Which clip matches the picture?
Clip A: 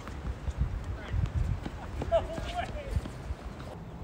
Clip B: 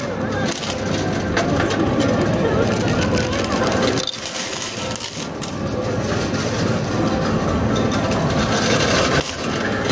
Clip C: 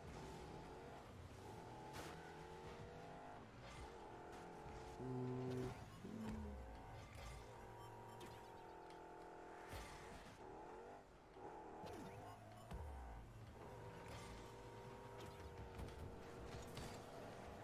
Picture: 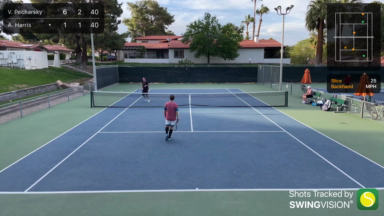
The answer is A